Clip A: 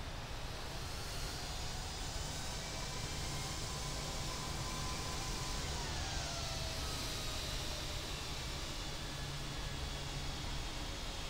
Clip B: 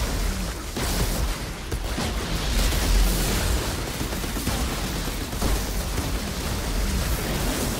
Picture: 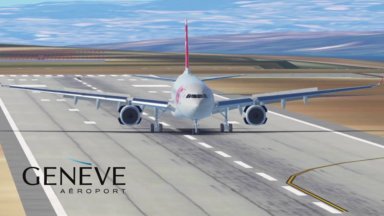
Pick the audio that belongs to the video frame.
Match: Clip A